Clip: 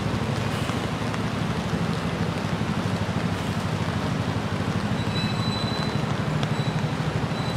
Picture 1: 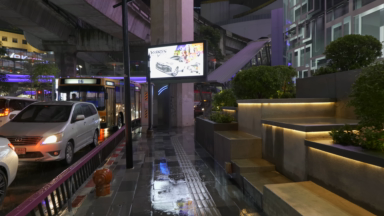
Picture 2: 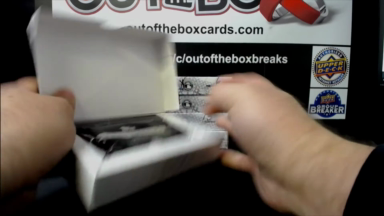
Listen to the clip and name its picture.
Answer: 1